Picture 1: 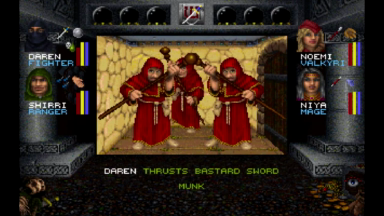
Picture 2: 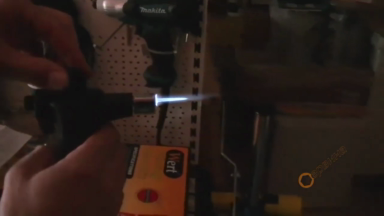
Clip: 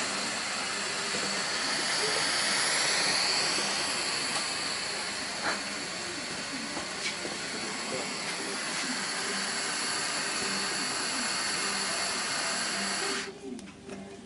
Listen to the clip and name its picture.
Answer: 2